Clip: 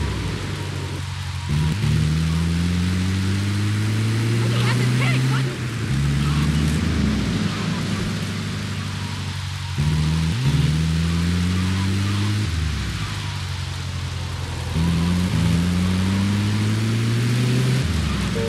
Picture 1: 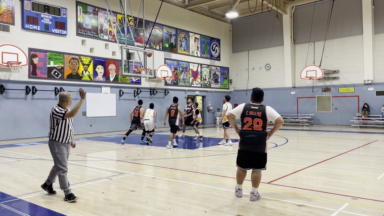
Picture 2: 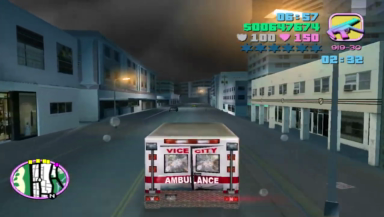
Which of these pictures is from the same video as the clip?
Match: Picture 2